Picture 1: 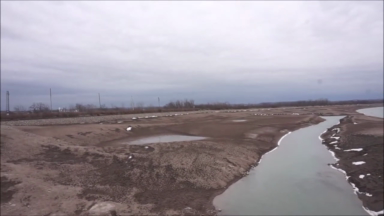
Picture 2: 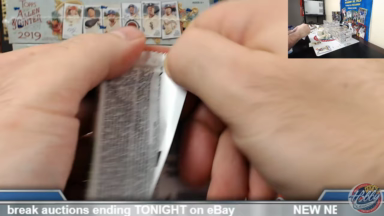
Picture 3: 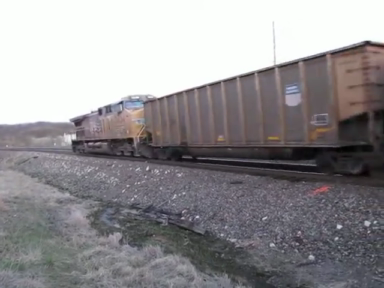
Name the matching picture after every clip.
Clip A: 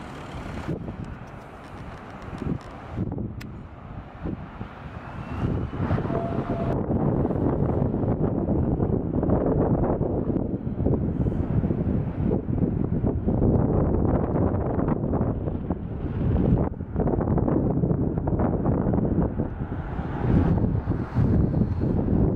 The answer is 1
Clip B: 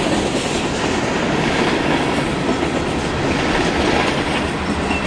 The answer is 3